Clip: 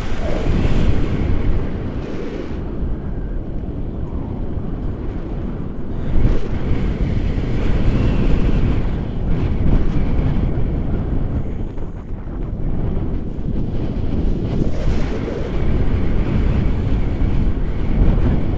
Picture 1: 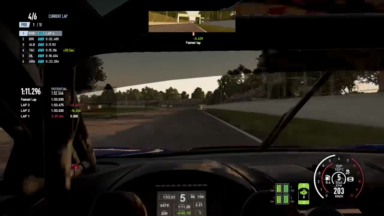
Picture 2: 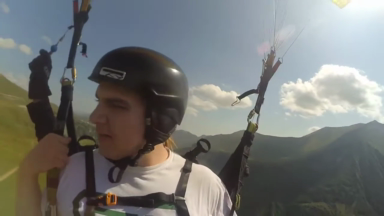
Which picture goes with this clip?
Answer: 2